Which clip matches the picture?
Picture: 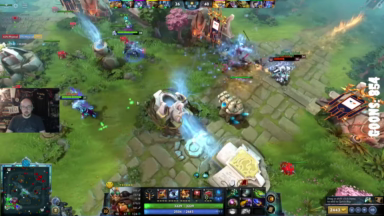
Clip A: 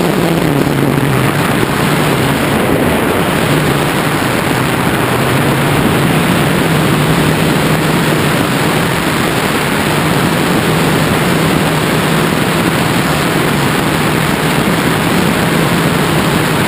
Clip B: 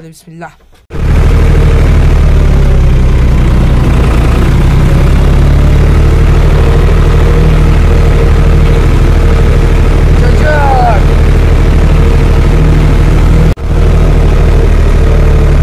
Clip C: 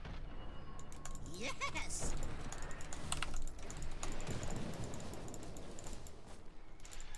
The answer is C